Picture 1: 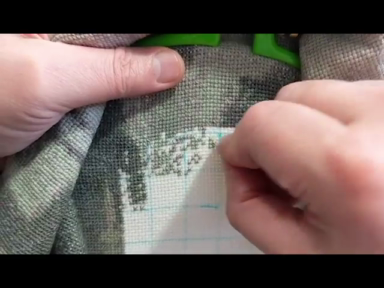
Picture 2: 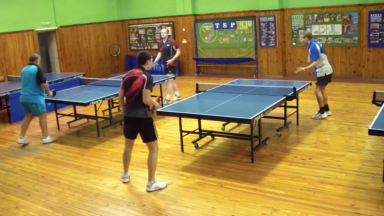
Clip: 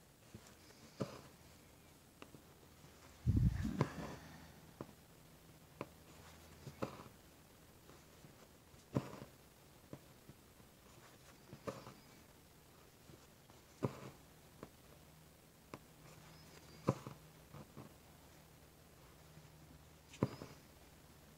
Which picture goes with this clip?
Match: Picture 1